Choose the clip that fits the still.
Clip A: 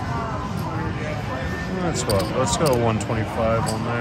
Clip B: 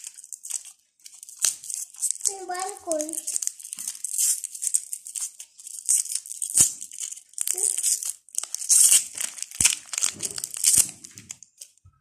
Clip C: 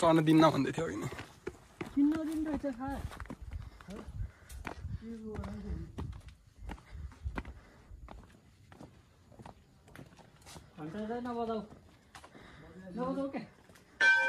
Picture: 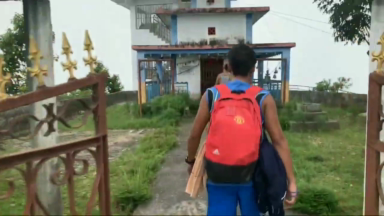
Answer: C